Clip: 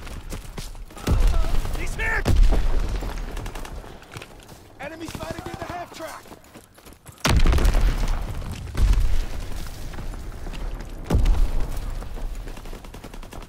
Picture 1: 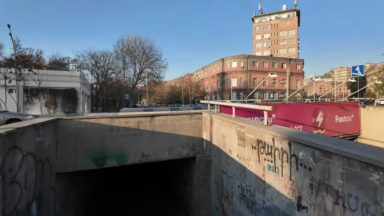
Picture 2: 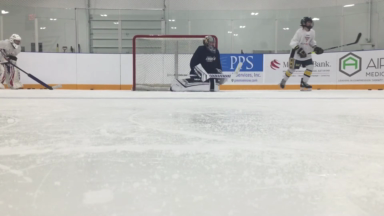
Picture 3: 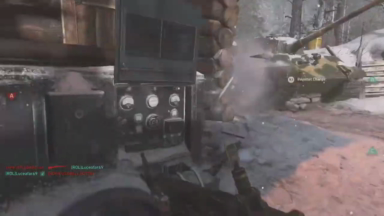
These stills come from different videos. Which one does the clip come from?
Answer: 3